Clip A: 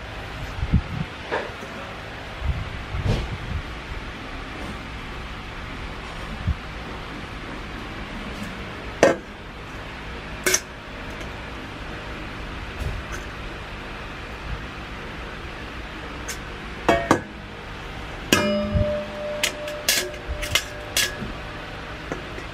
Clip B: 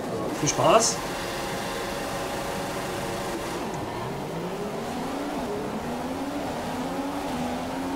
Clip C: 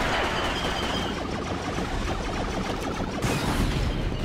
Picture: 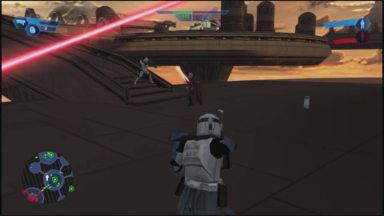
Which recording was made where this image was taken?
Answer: C